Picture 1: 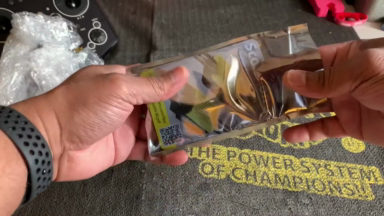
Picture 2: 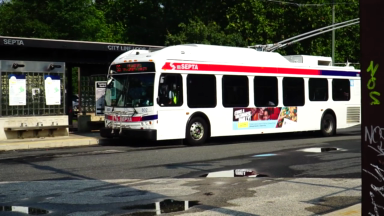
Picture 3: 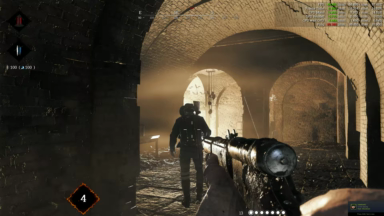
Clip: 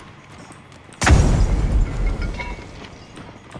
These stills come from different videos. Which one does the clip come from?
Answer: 3